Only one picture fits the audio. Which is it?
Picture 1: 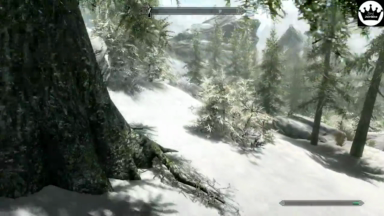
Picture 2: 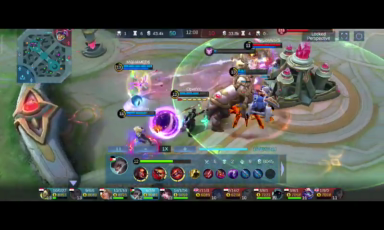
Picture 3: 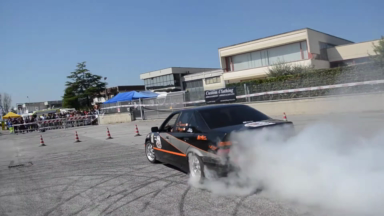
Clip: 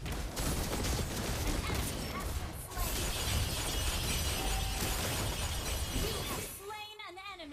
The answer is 2